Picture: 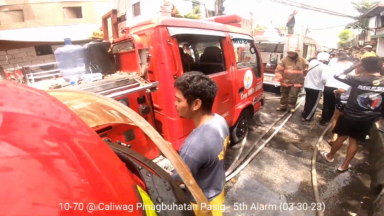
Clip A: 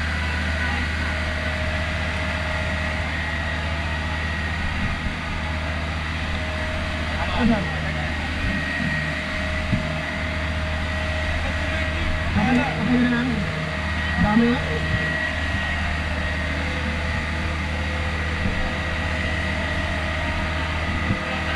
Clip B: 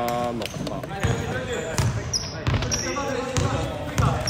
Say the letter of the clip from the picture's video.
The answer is A